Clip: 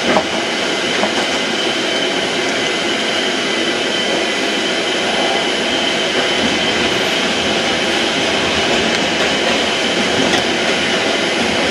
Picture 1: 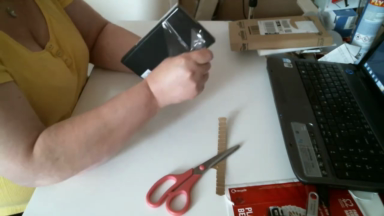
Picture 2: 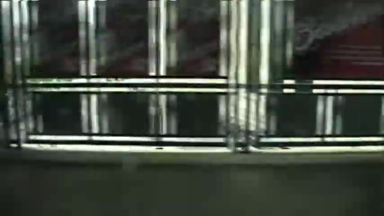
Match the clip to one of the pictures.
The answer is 2